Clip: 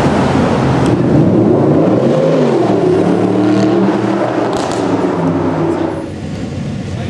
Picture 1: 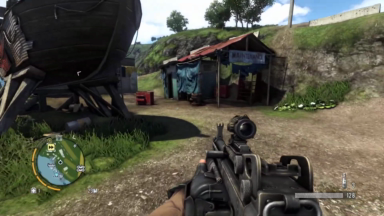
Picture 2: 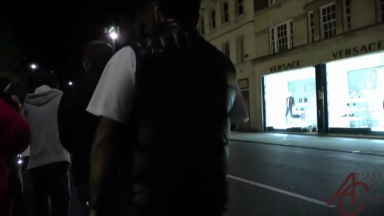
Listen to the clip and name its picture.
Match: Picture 2